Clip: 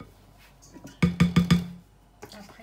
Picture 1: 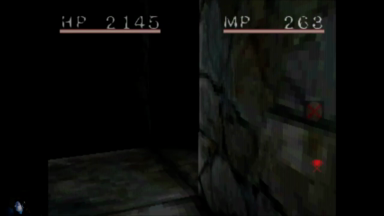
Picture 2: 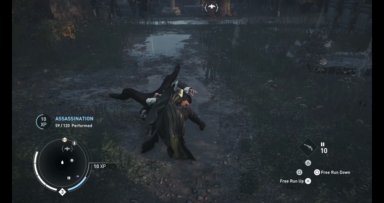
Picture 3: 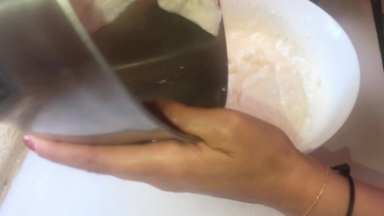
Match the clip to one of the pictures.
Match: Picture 3